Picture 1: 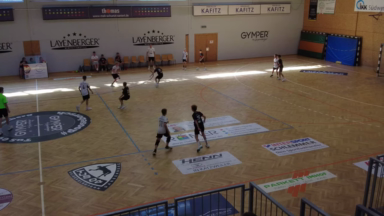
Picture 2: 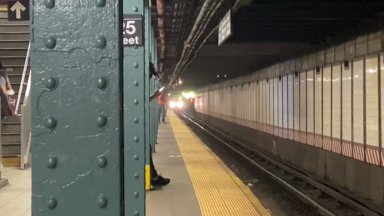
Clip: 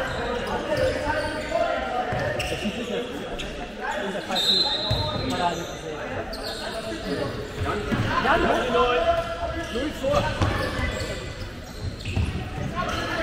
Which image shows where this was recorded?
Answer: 1